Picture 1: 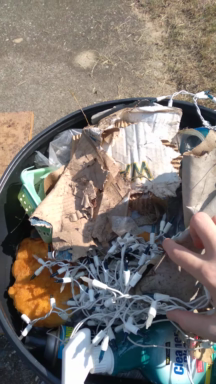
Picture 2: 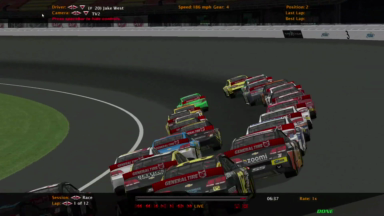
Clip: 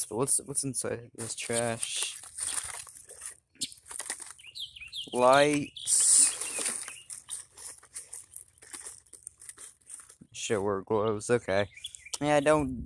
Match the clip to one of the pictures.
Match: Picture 1